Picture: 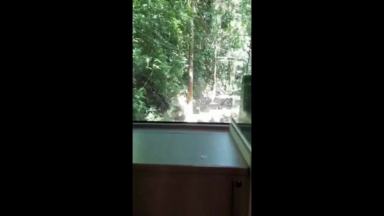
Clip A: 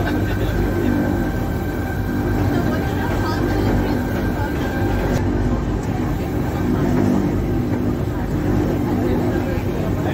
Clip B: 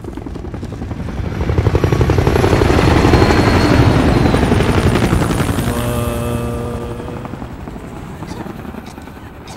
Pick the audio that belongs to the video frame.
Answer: A